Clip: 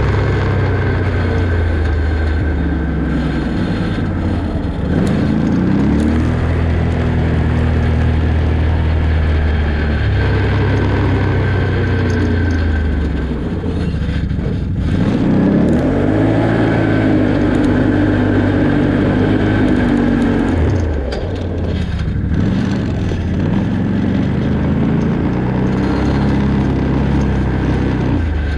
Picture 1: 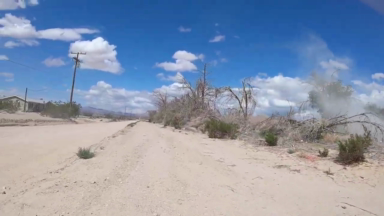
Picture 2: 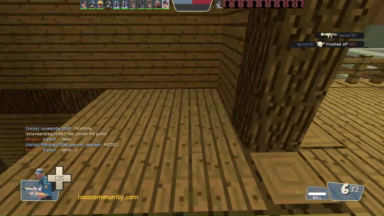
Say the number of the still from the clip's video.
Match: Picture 1